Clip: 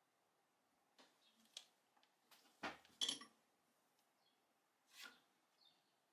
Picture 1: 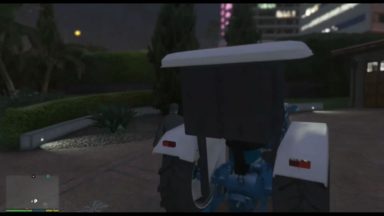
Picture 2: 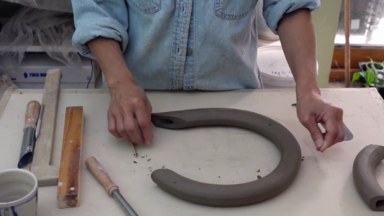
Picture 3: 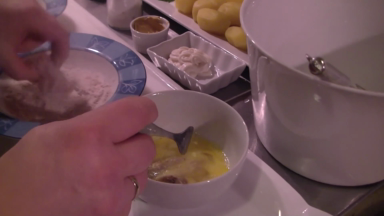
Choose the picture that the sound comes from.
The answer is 2